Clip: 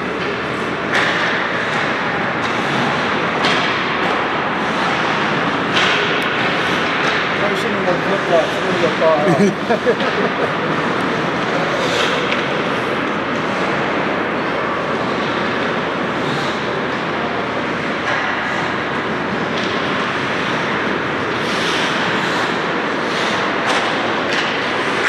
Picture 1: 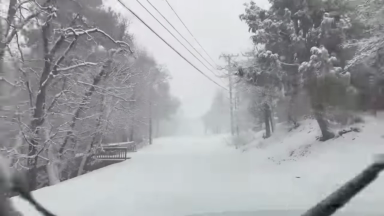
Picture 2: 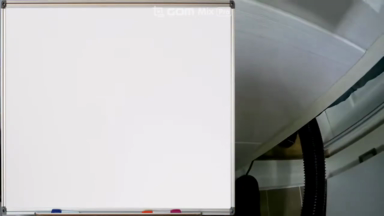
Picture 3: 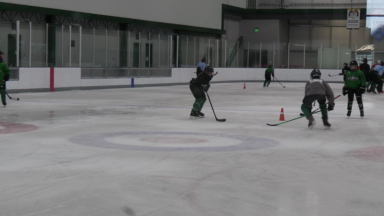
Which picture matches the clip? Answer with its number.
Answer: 3